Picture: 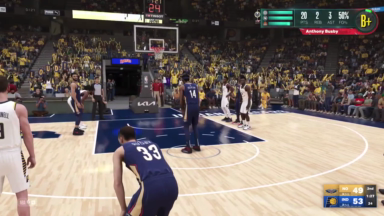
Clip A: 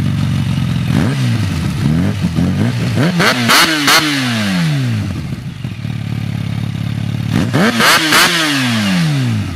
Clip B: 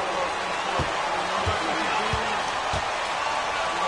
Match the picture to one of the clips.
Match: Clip B